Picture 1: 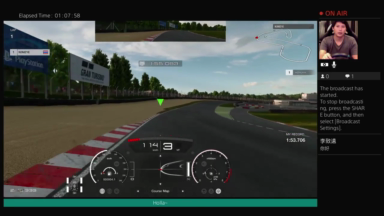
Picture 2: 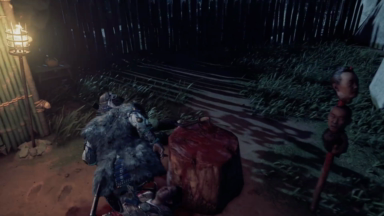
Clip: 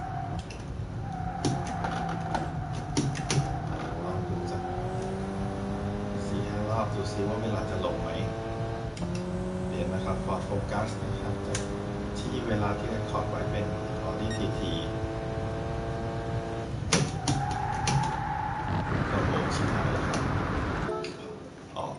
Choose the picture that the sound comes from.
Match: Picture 1